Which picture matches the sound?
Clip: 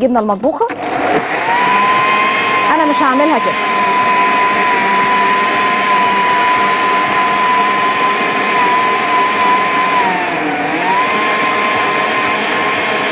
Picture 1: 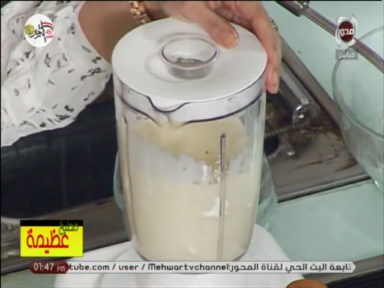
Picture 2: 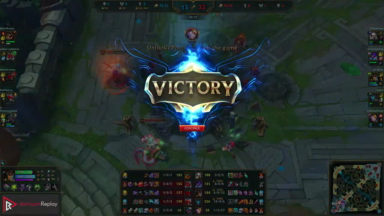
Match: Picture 1